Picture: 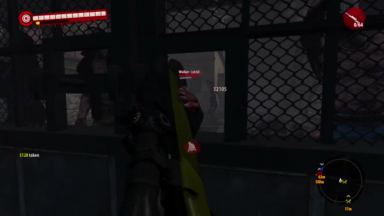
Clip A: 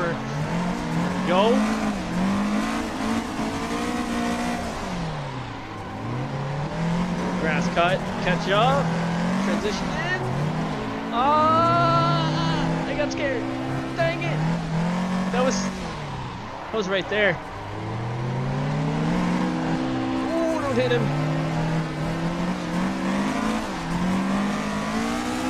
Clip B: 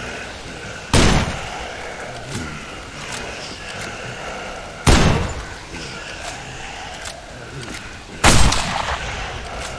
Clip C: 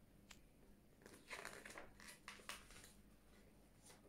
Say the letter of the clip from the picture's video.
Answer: B